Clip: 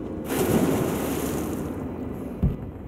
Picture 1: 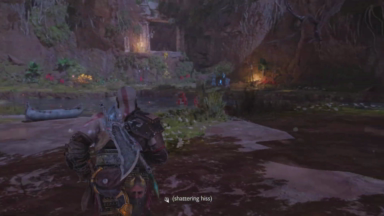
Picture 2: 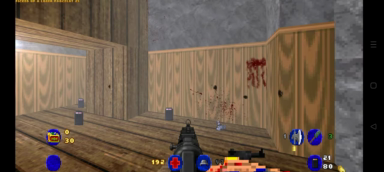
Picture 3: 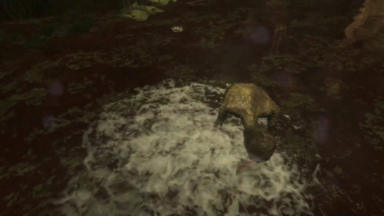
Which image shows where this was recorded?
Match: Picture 3